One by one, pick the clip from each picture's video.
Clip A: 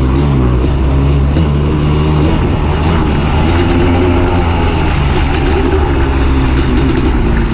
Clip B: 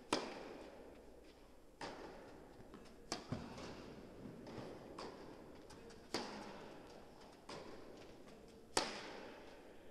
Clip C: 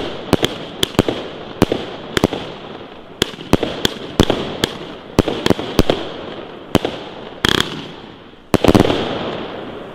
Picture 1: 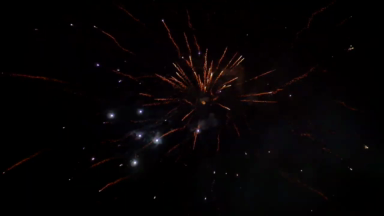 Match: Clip C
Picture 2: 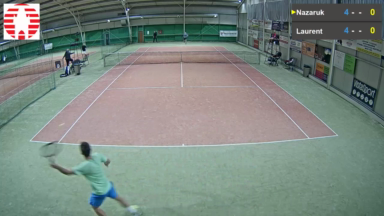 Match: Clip B